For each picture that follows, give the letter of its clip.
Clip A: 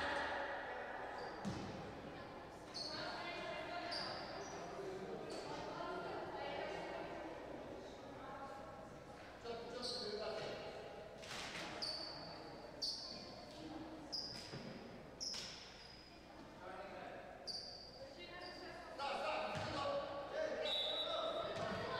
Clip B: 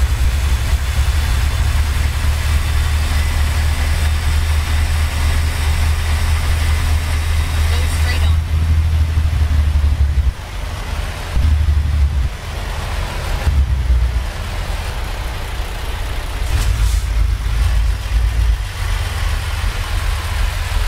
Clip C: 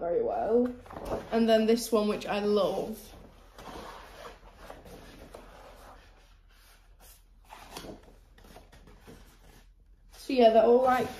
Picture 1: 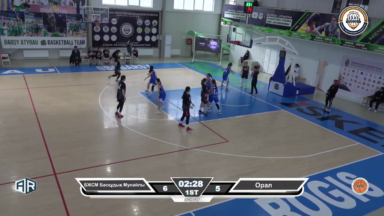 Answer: A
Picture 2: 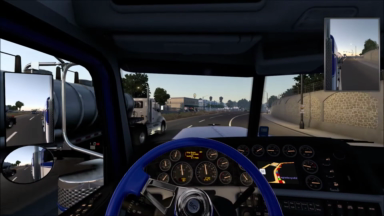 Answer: B